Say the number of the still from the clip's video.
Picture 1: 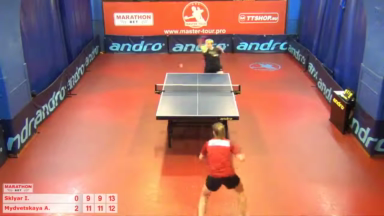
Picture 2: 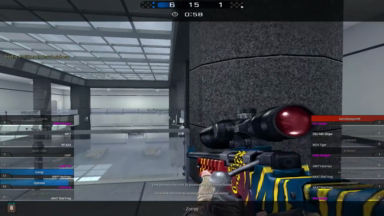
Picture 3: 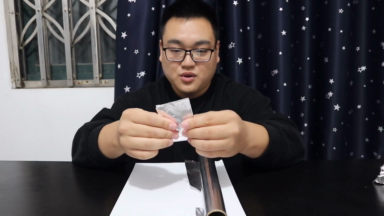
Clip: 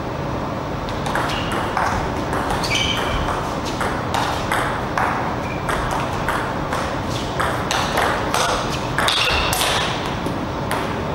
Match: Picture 1